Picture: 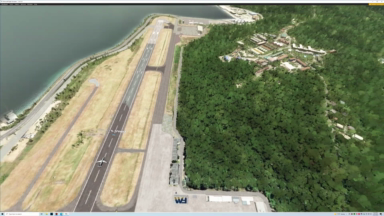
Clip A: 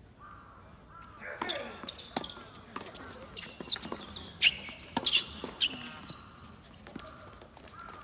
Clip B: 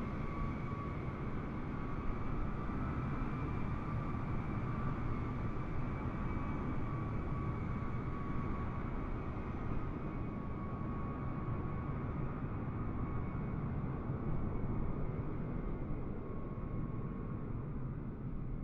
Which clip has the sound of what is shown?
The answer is B